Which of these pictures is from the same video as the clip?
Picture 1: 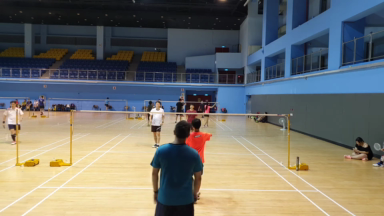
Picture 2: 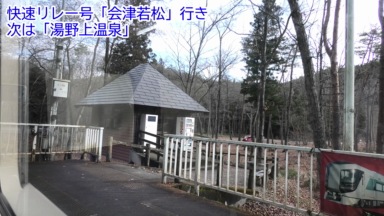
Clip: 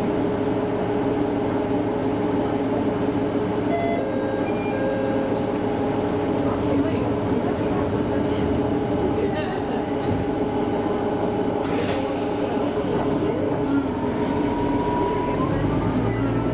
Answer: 2